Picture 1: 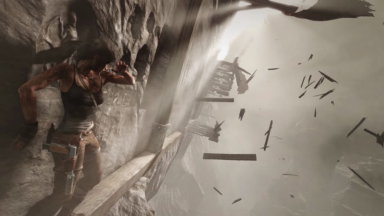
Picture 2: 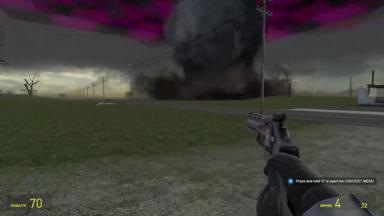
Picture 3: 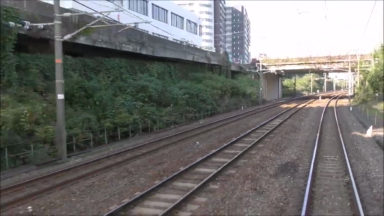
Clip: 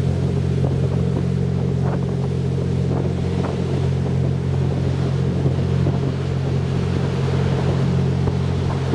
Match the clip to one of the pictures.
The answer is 3